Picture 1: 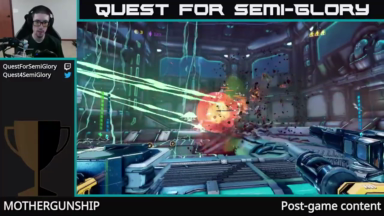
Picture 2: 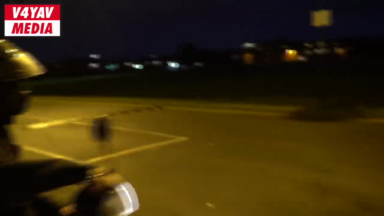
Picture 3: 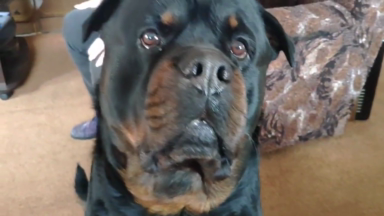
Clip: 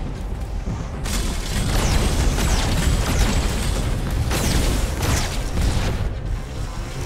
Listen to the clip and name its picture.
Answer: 1